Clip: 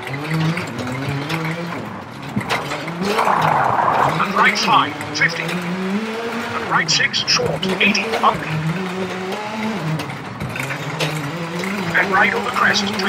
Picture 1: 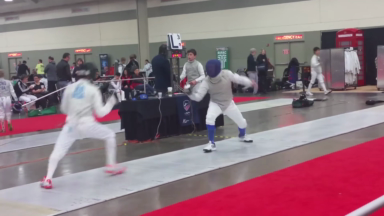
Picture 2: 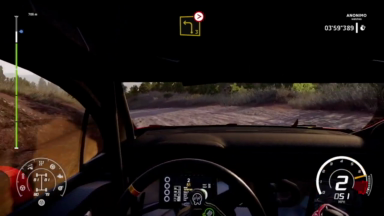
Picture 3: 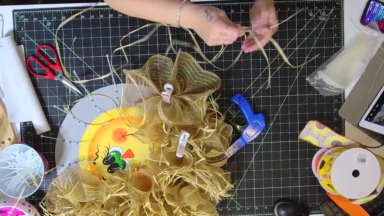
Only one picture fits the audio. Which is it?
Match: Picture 2